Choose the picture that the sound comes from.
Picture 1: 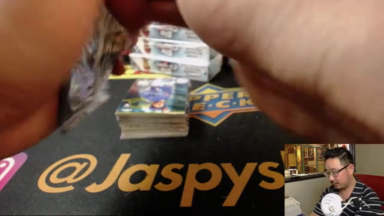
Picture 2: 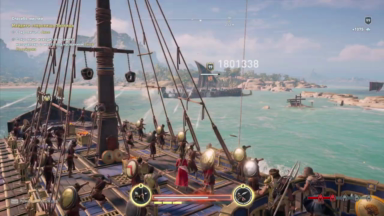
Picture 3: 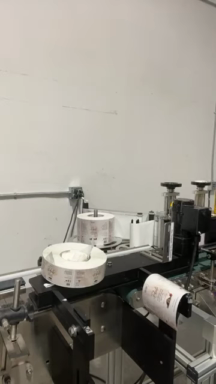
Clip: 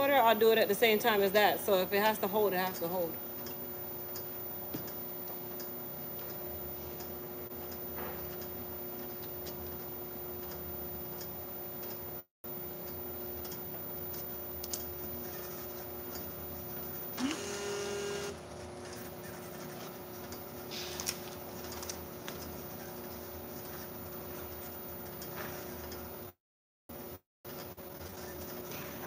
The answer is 3